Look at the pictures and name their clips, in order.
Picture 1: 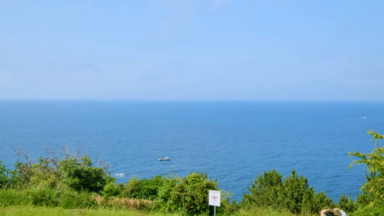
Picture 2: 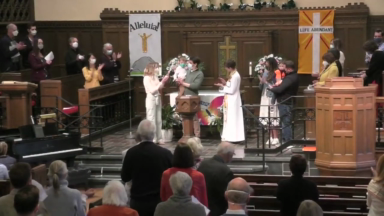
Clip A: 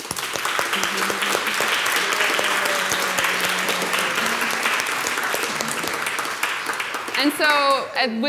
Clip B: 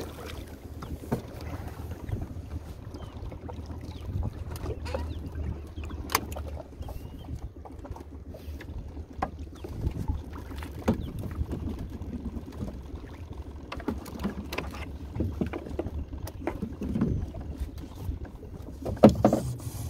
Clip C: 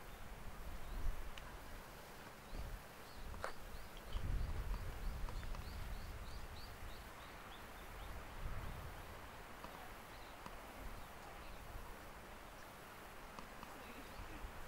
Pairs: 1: C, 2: A